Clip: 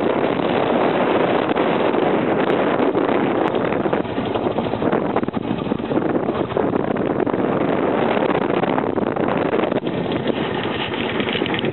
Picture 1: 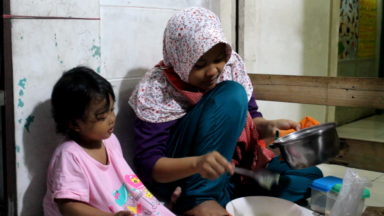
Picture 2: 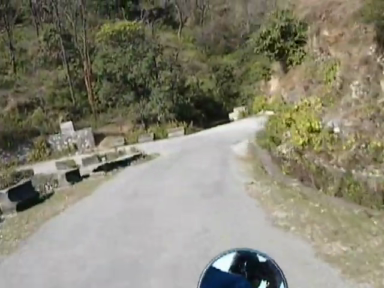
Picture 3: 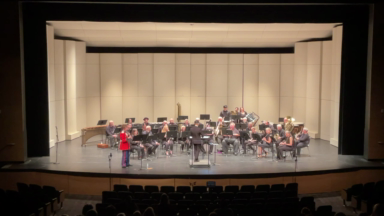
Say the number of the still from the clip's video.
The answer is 2